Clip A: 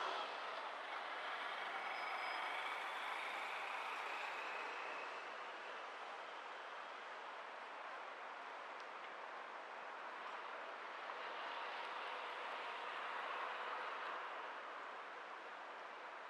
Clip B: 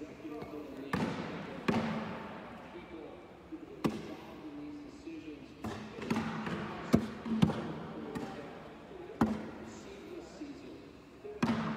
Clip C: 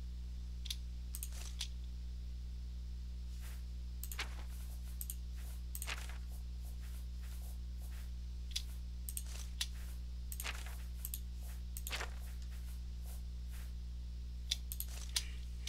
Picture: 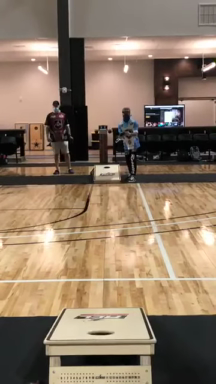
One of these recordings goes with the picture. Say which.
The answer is B